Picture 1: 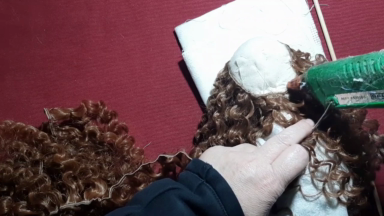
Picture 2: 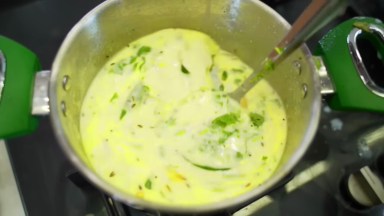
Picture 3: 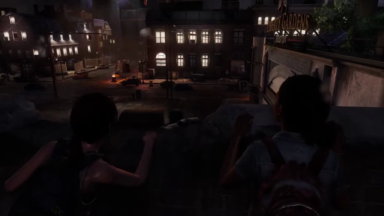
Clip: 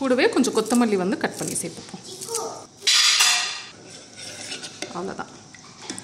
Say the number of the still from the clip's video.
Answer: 2